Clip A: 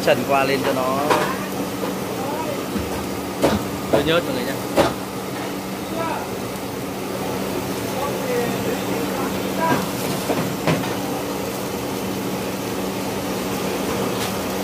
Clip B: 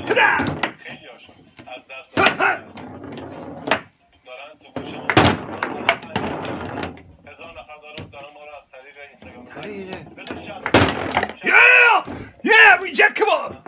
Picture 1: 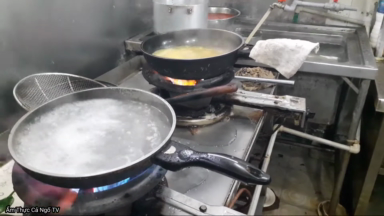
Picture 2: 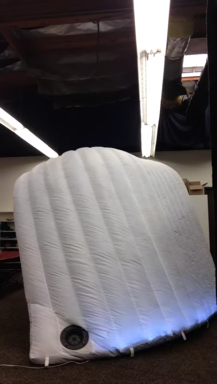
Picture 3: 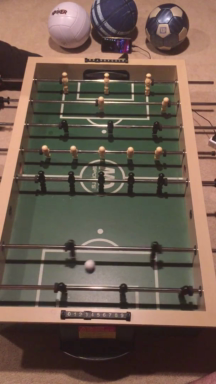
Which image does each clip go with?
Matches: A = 1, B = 3